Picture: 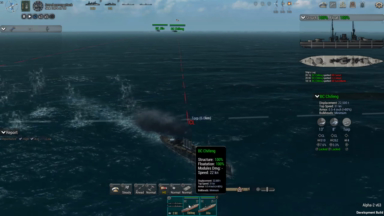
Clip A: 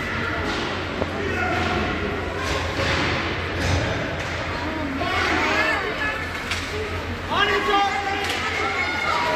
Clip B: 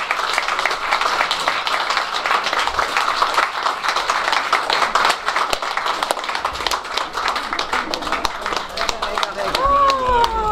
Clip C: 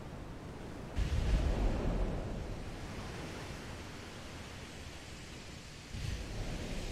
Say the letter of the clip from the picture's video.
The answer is C